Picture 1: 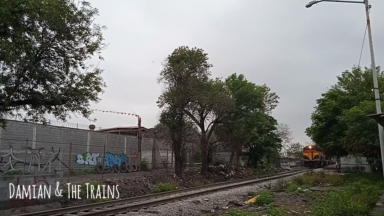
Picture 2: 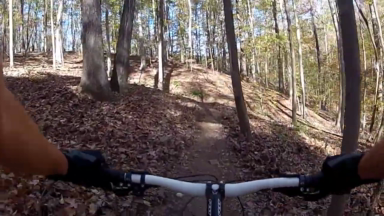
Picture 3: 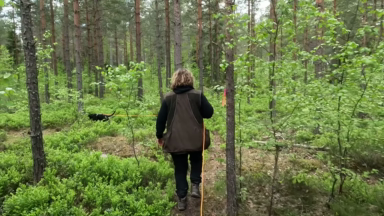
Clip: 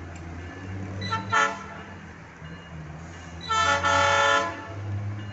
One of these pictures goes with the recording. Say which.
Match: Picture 1